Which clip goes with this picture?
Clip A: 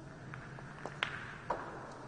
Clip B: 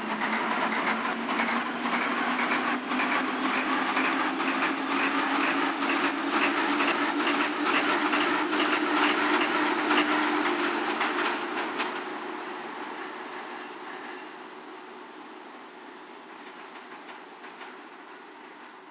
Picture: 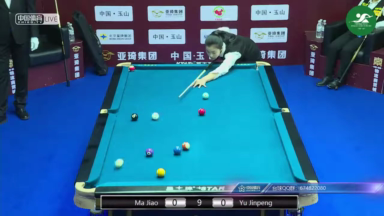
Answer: A